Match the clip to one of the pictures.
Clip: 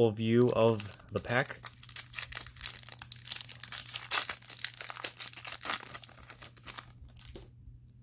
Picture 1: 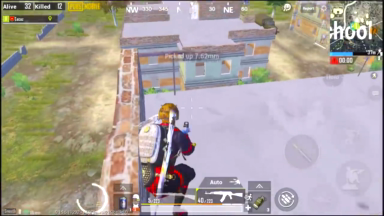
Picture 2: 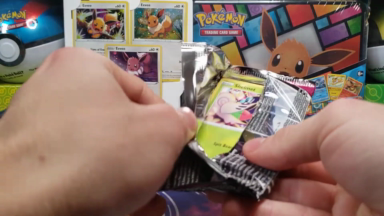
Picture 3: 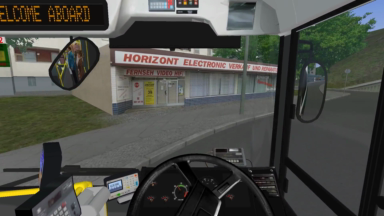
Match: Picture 2